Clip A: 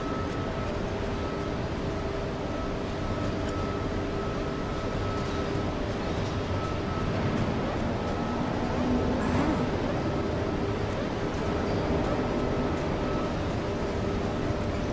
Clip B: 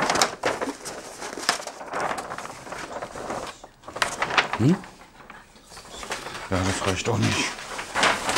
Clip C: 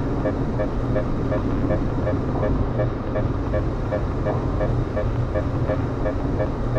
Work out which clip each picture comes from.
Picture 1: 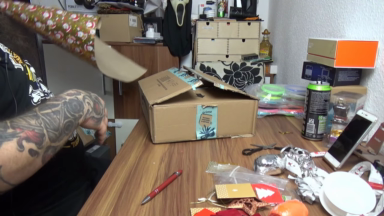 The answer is B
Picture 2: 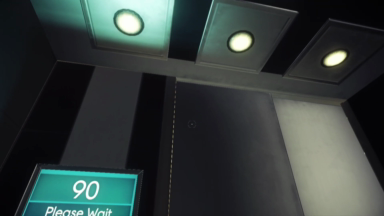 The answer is C